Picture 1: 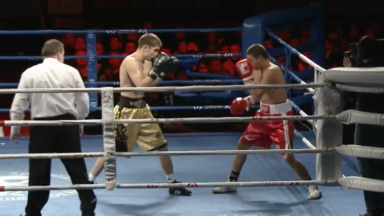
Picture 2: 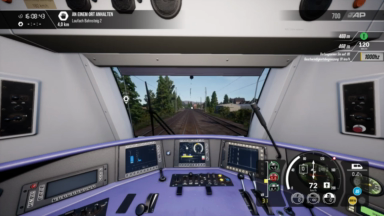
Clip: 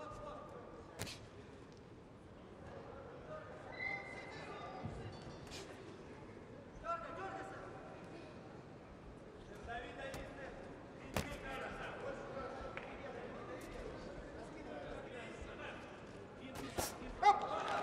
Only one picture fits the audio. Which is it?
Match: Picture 1